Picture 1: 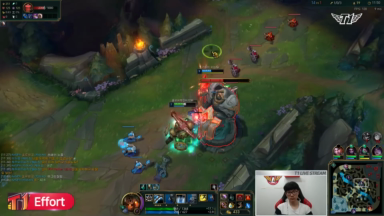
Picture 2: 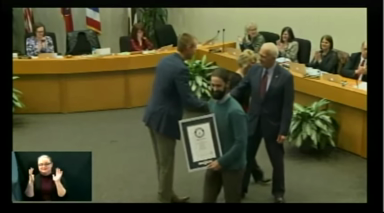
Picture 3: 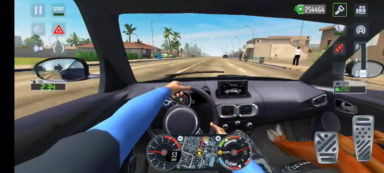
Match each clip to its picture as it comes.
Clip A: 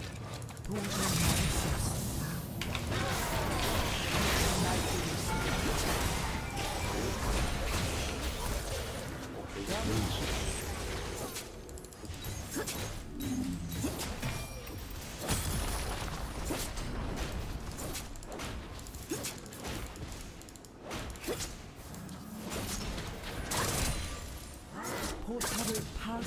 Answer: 1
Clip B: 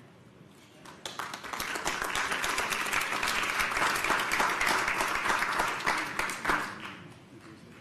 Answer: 2